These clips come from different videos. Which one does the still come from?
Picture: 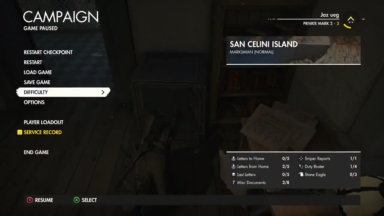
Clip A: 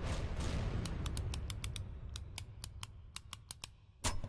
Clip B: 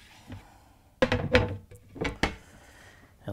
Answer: A